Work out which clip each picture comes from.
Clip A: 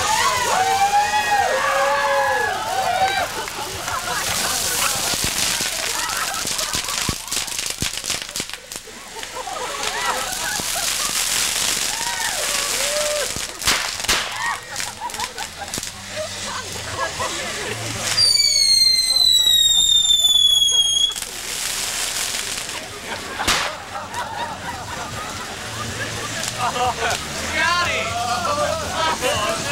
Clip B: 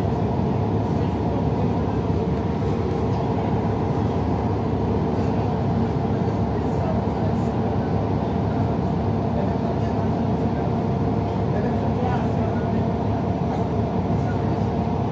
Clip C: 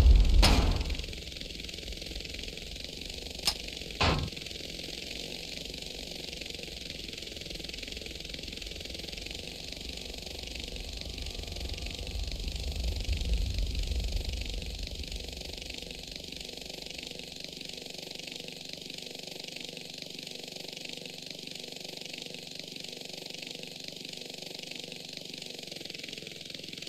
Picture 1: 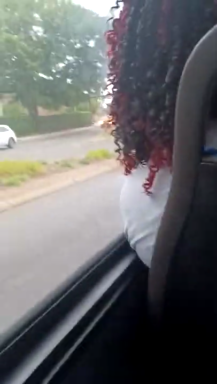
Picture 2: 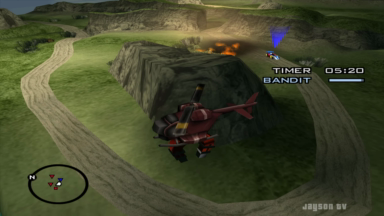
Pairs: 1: B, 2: C